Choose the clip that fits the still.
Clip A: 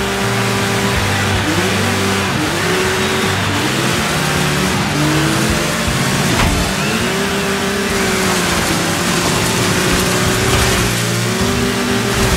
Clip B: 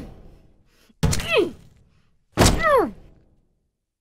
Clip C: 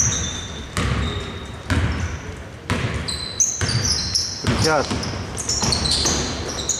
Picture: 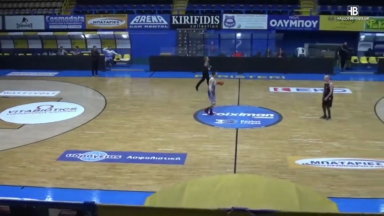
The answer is C